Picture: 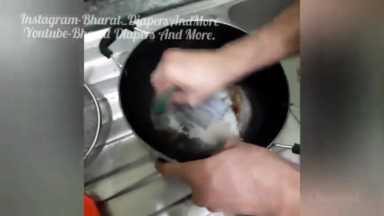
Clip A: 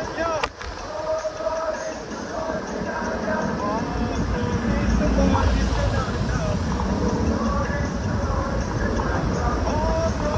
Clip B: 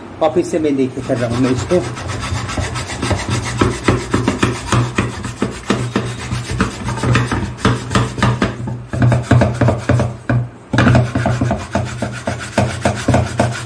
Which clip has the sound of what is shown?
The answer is B